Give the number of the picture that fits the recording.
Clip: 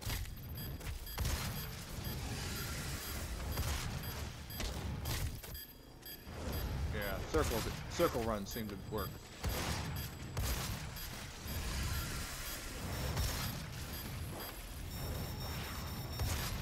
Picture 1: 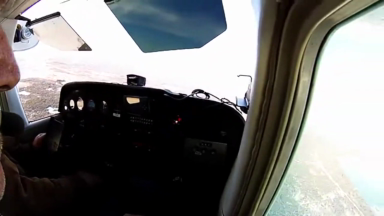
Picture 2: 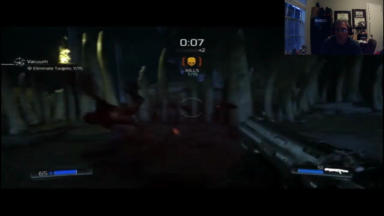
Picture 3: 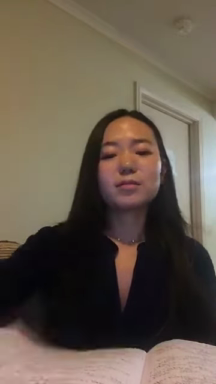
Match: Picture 2